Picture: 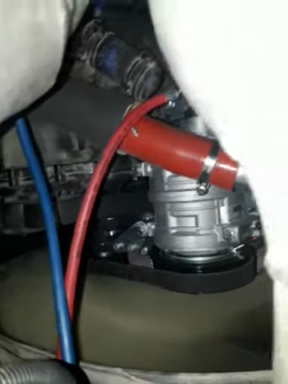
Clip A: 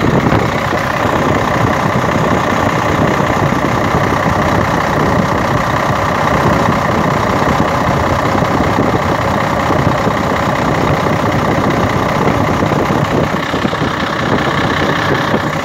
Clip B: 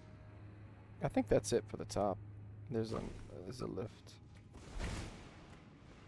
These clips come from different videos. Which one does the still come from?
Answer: A